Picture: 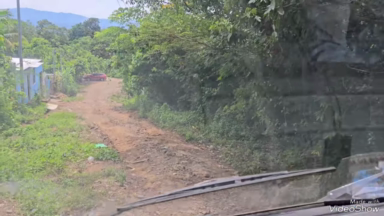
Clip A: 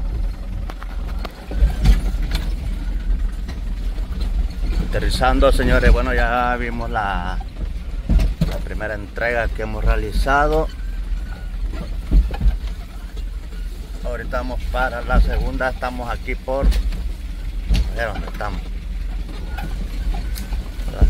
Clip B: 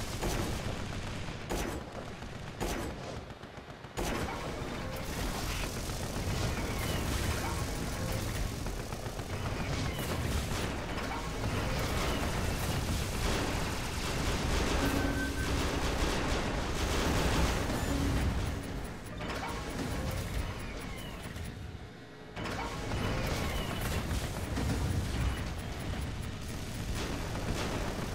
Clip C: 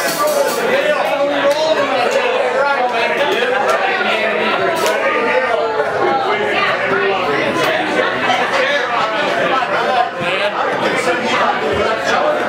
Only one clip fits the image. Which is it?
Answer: A